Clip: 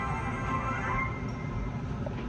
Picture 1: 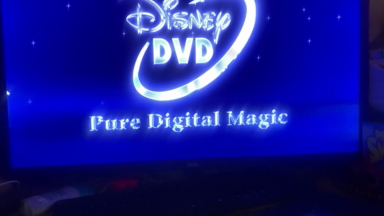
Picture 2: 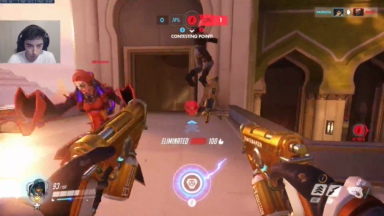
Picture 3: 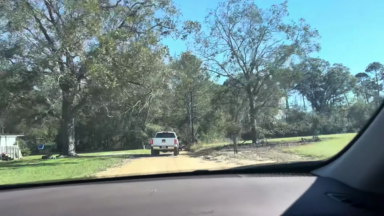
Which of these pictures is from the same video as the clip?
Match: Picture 1